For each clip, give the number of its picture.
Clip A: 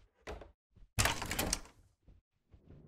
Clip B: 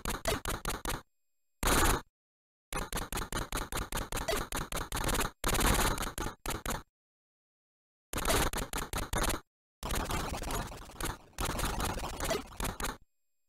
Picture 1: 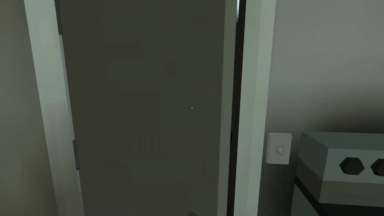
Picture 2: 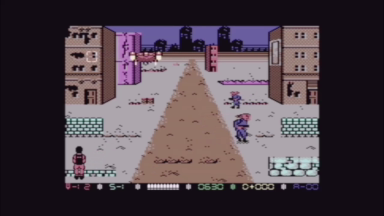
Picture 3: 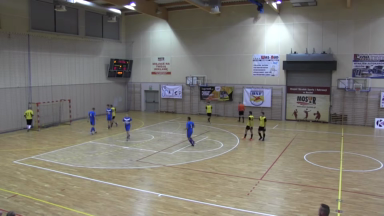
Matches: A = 1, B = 2